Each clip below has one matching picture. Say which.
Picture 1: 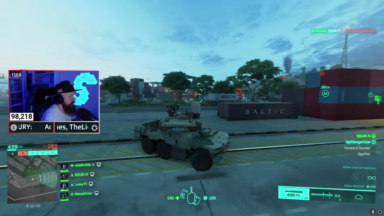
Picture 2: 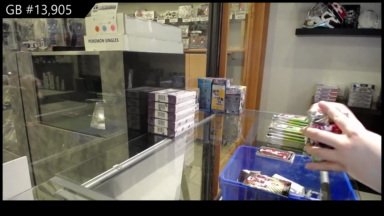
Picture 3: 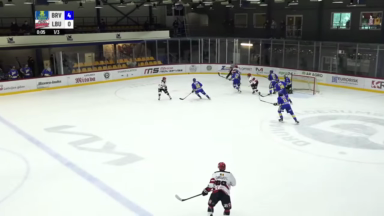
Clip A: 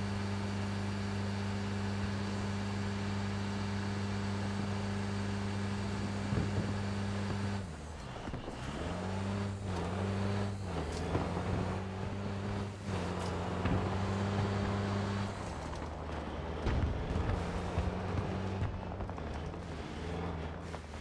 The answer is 1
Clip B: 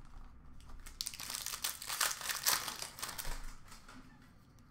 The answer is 2